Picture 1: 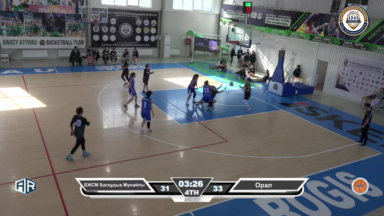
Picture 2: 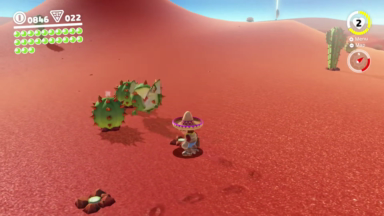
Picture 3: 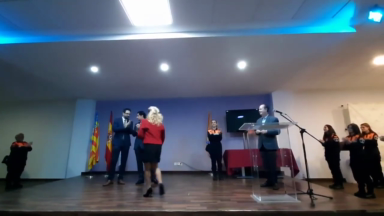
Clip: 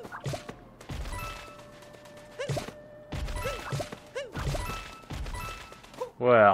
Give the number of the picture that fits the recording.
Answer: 2